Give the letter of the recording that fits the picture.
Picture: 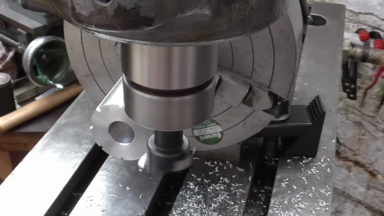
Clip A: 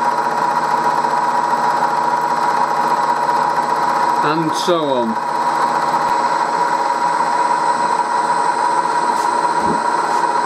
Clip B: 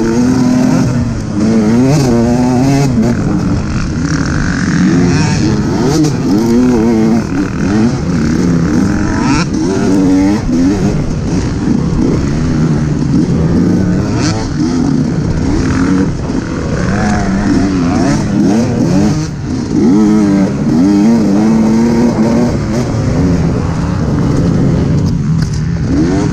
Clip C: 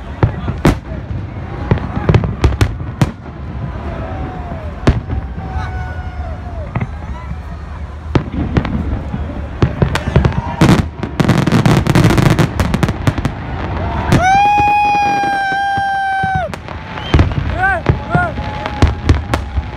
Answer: A